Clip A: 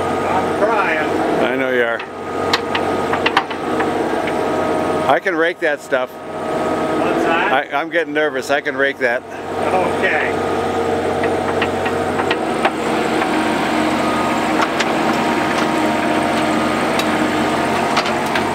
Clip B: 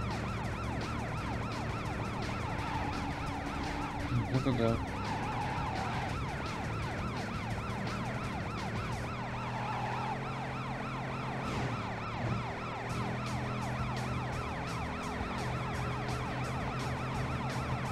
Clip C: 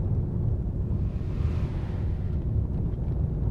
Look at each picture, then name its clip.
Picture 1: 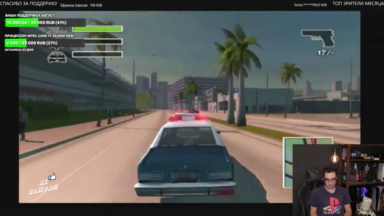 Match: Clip B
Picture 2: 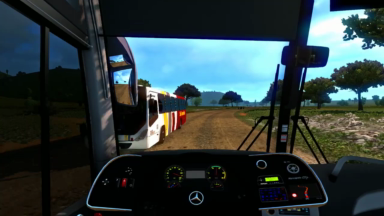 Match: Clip C